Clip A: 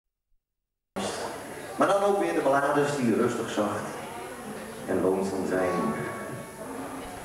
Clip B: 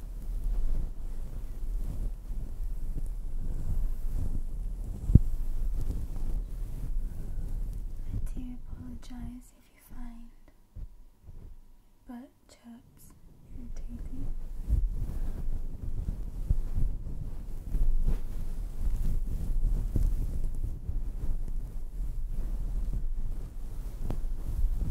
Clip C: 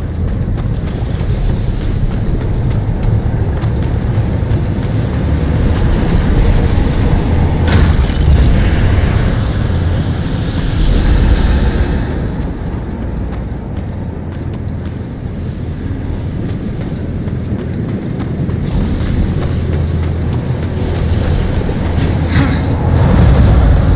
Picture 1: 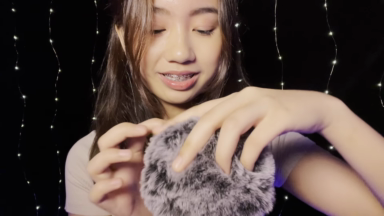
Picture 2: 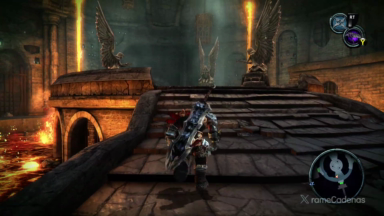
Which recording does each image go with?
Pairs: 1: B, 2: C